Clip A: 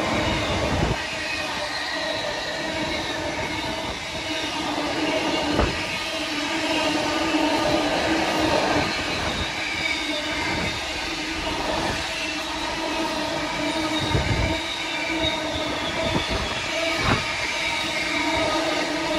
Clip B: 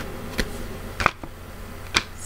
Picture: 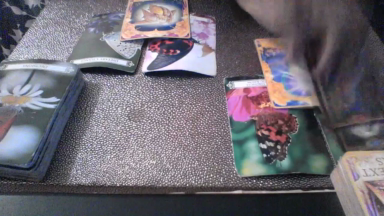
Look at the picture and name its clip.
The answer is B